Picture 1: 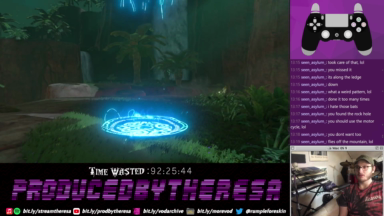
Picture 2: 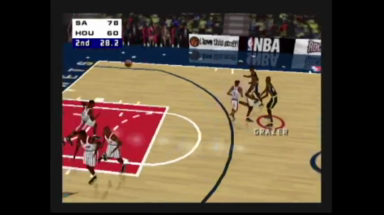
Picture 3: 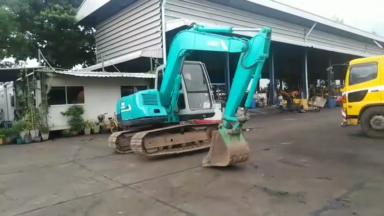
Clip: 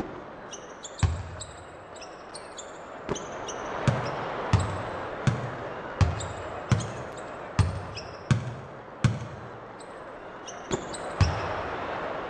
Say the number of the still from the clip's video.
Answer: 2